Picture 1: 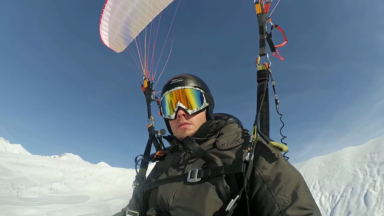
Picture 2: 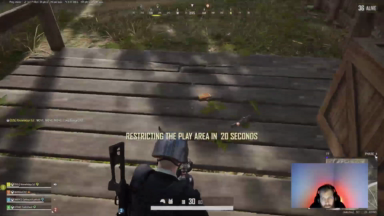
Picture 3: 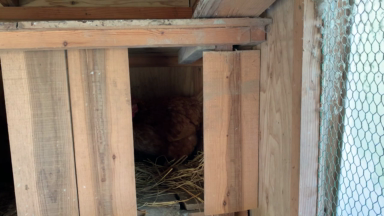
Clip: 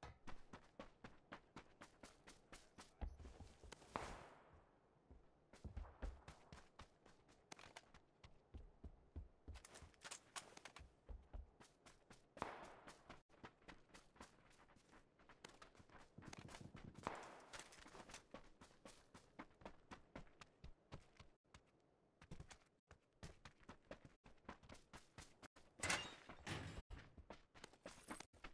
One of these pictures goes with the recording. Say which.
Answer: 2